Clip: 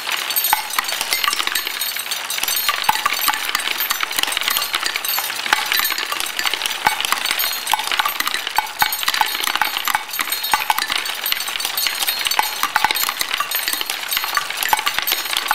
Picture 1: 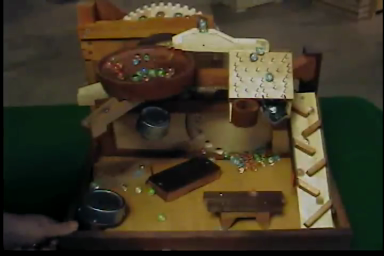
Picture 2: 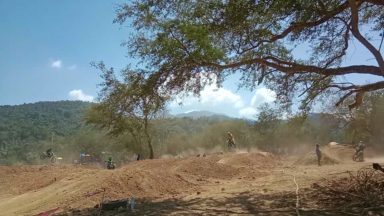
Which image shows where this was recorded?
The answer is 1